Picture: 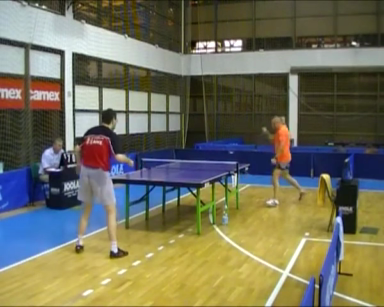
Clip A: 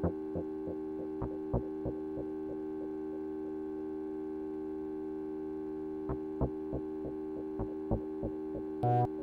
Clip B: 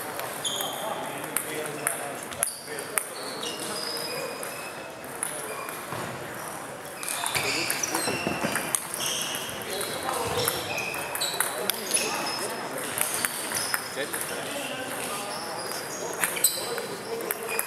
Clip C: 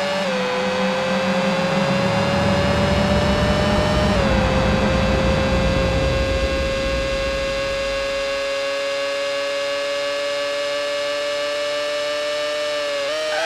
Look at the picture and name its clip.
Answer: B